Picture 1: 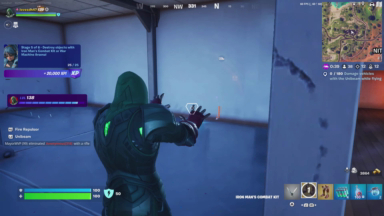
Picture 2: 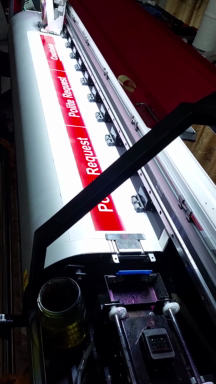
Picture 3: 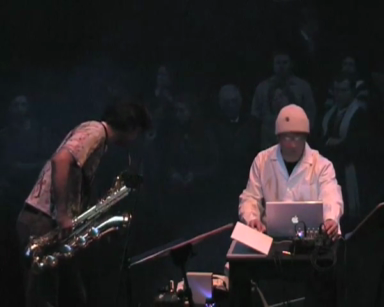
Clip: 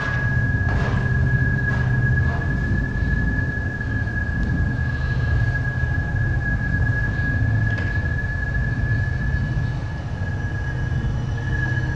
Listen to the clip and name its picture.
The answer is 3